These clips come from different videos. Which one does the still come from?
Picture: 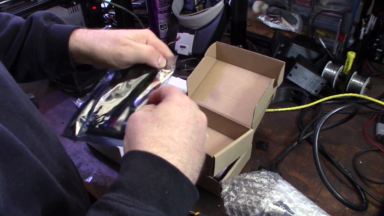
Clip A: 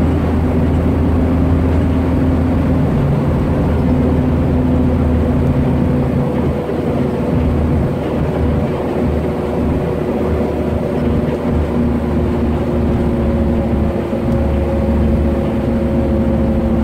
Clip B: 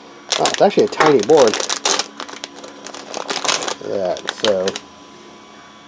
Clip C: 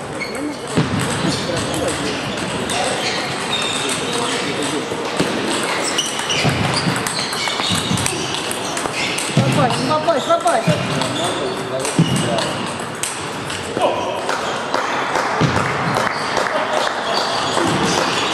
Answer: B